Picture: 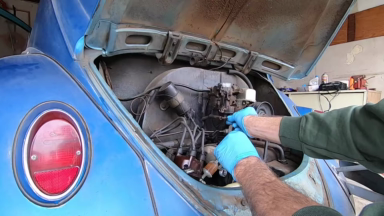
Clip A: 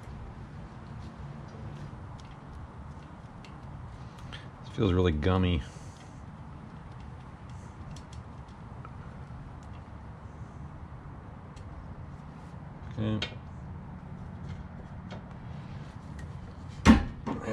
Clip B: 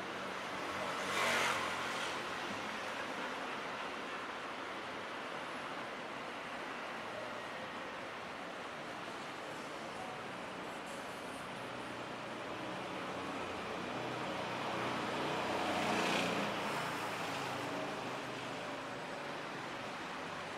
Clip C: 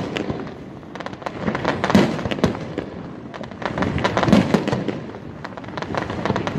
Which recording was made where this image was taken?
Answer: A